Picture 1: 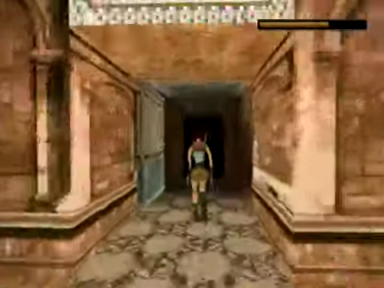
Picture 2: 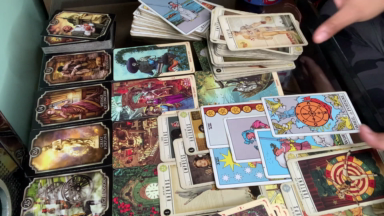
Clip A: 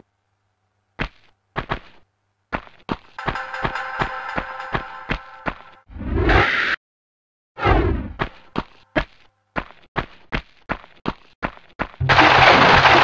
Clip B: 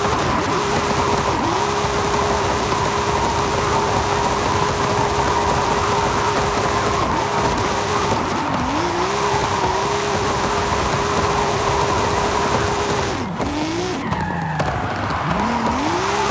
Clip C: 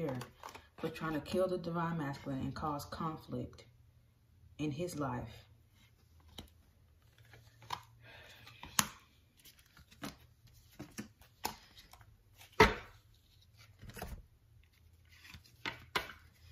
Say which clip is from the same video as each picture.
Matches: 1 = A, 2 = C